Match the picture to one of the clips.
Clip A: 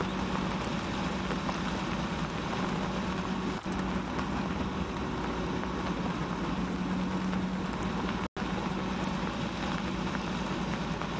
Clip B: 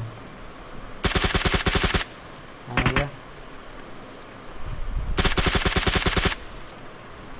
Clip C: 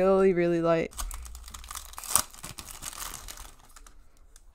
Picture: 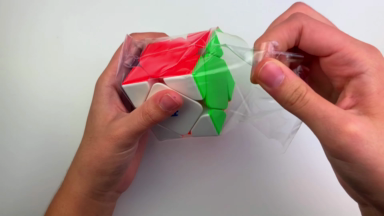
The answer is C